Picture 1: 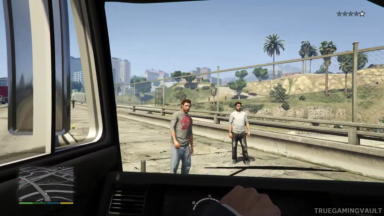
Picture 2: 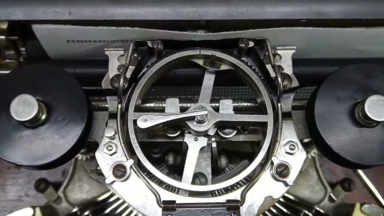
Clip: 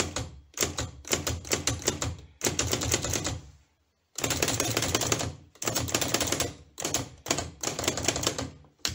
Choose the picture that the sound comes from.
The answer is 2